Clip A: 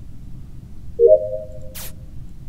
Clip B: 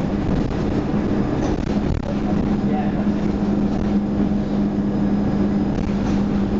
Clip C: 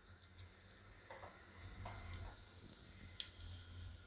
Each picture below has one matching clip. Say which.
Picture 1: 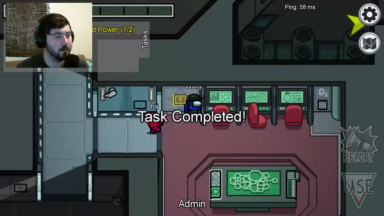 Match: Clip A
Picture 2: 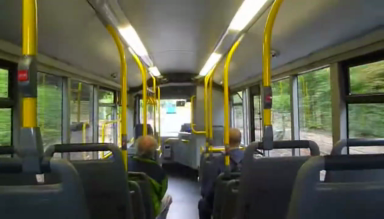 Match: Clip B